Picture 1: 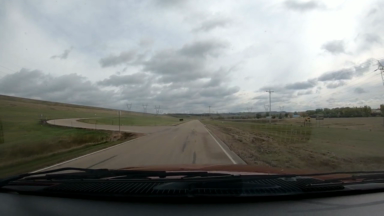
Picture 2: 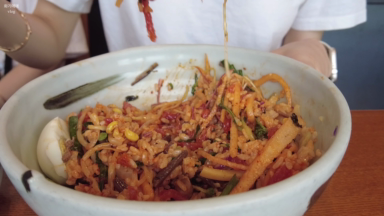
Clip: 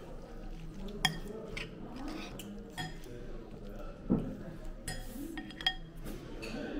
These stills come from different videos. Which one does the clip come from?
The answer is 2